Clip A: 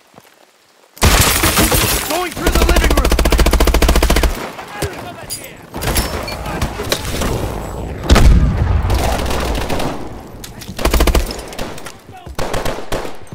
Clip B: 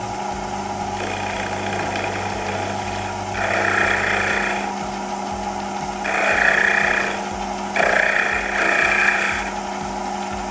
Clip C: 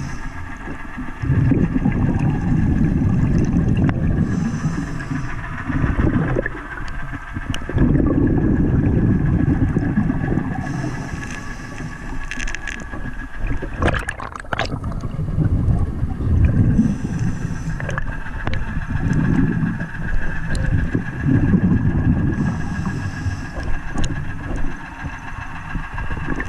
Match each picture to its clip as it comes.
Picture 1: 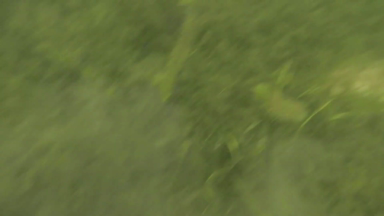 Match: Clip C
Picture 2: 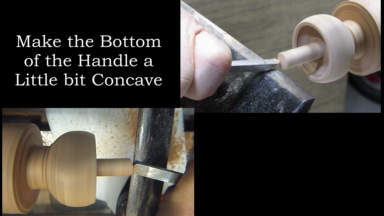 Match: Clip B